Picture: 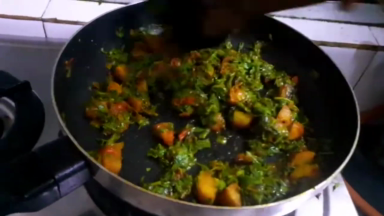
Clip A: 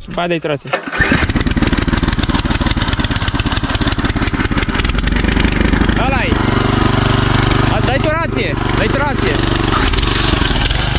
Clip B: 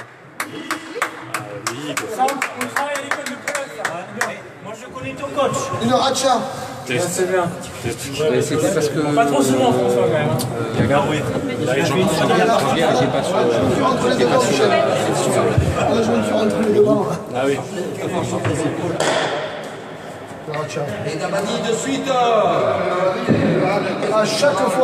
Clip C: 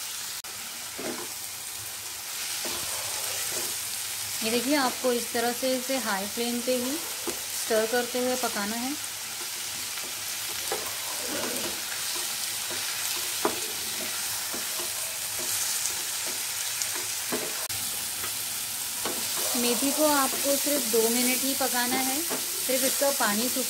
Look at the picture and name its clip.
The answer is C